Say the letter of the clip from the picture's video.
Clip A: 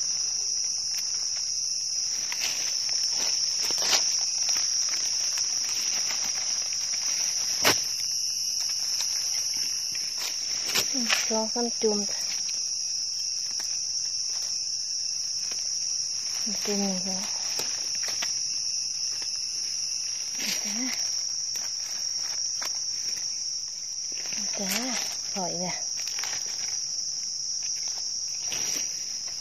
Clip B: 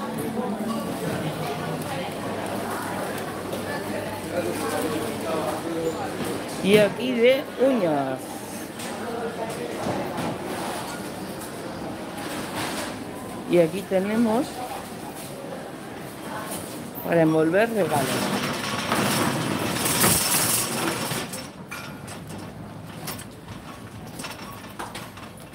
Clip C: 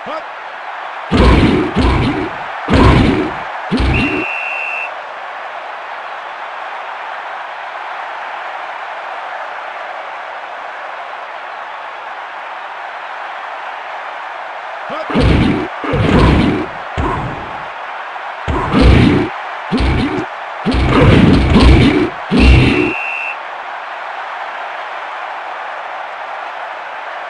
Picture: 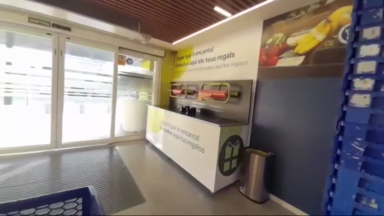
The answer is B